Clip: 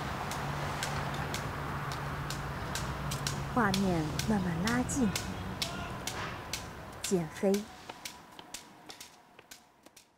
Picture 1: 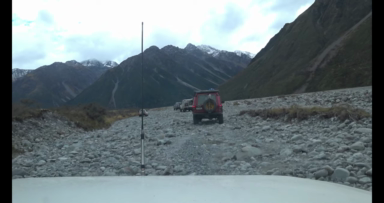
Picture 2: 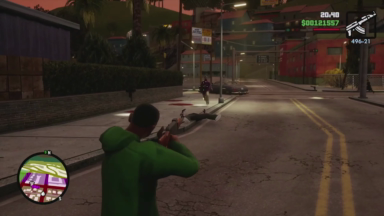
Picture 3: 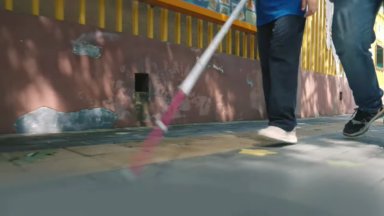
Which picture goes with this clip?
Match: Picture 3